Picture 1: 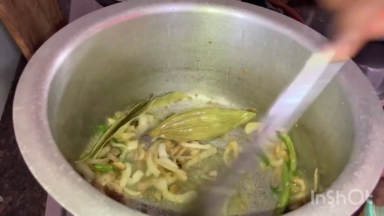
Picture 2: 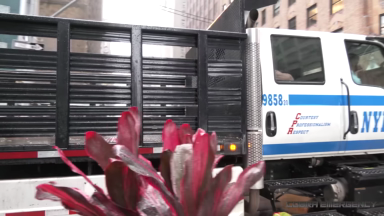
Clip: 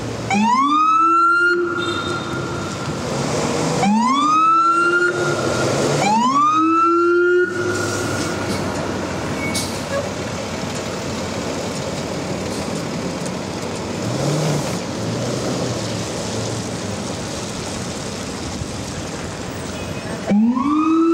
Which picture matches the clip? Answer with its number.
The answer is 2